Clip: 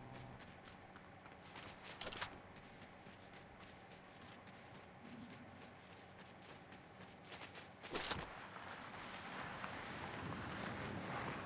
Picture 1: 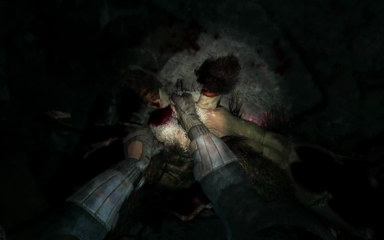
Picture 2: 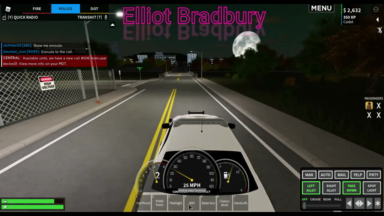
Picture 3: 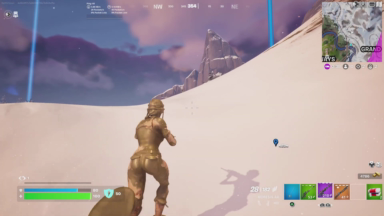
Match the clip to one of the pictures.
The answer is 3